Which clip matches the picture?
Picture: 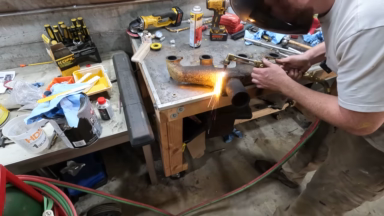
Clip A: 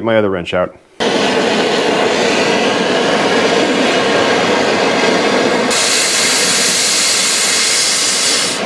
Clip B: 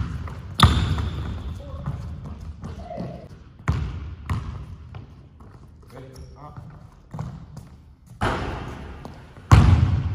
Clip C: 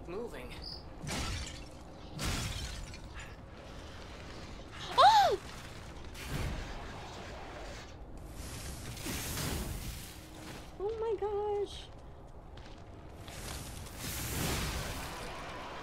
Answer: A